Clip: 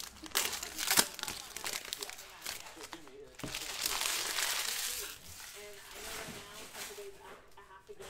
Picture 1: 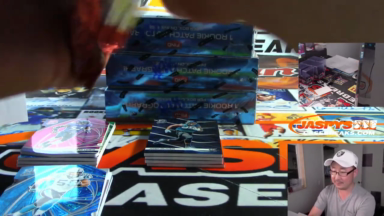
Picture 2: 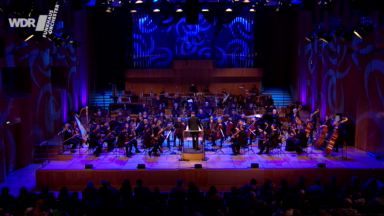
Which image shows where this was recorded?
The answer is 1